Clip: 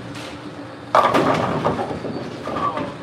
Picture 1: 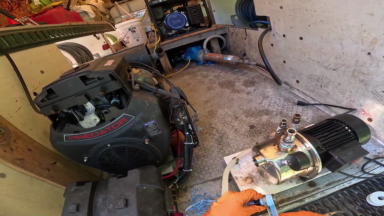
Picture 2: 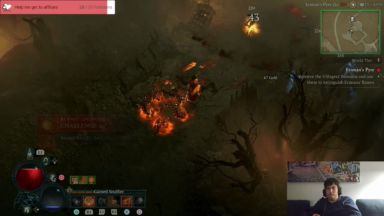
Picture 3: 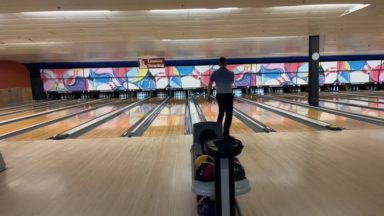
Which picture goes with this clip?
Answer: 3